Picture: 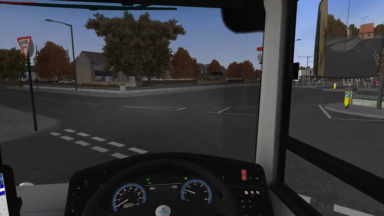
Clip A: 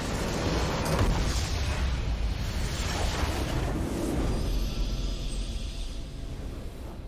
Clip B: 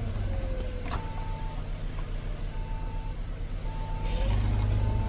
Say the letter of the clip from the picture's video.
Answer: B